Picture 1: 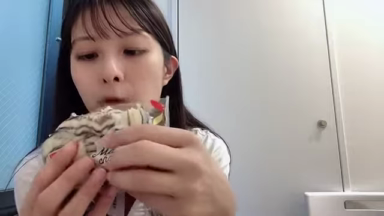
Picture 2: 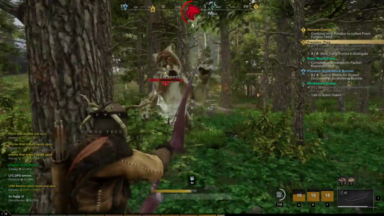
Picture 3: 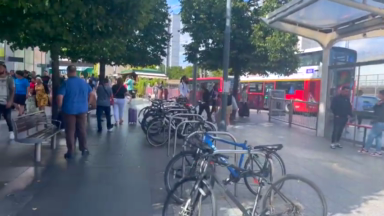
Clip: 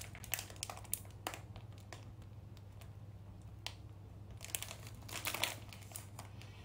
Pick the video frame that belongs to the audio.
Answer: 1